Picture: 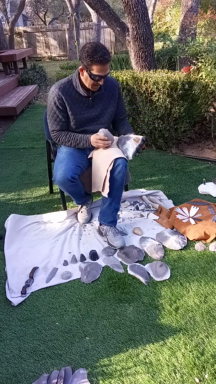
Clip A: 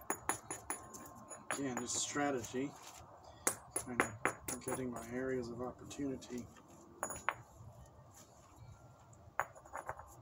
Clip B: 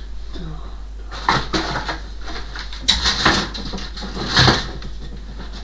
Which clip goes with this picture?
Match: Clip A